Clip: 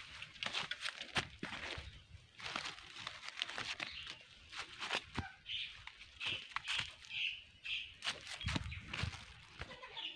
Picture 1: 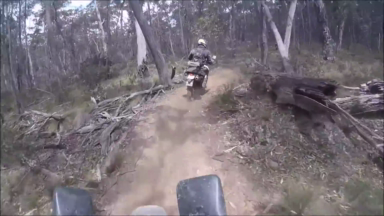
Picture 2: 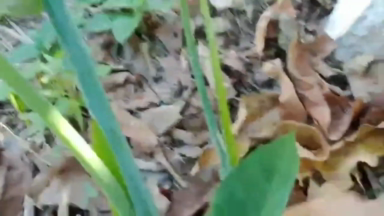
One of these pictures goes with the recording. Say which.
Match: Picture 2